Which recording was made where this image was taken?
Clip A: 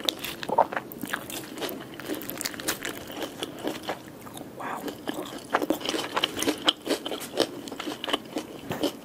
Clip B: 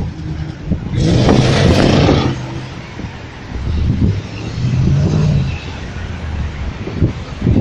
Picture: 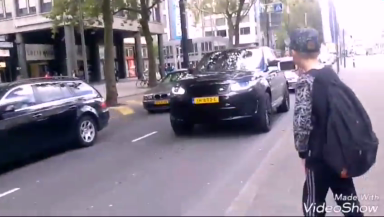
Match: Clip B